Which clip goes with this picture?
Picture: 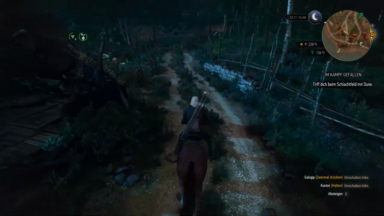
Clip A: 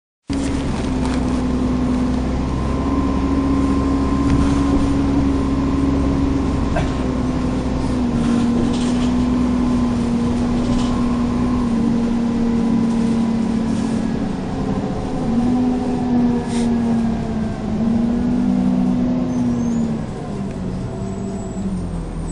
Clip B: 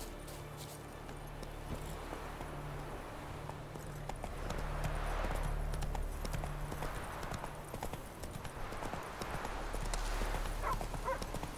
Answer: B